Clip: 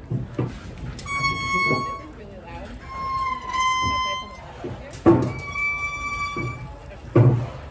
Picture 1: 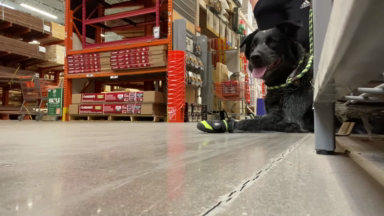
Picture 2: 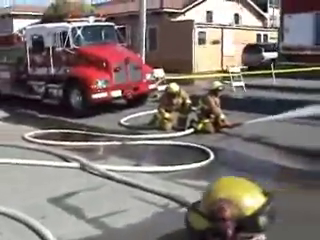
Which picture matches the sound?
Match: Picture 1